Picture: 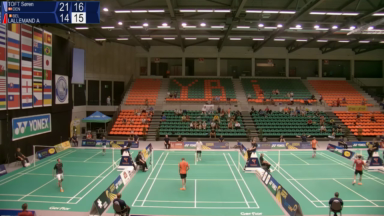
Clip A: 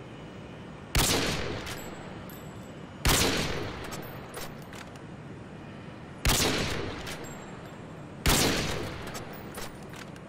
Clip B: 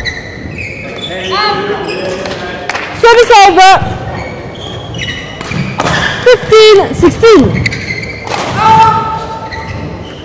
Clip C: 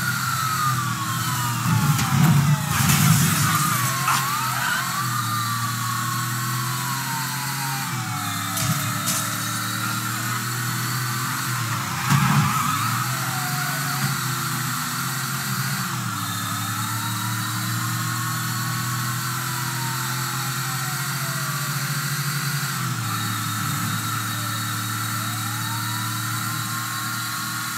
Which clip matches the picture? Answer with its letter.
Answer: B